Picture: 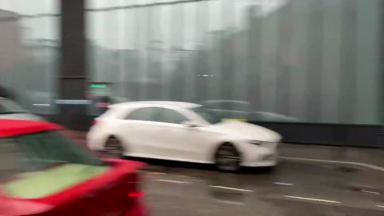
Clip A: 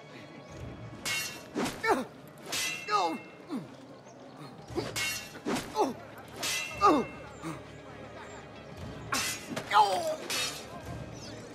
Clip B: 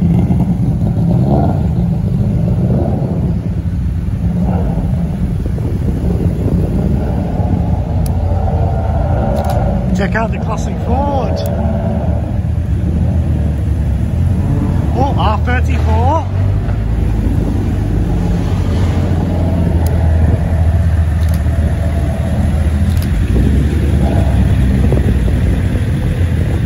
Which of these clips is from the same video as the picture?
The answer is B